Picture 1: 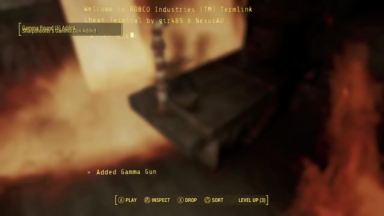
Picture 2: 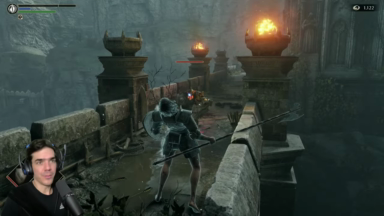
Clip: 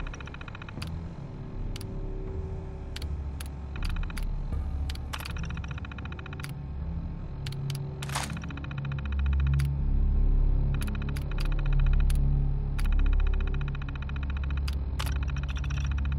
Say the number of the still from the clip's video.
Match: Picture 1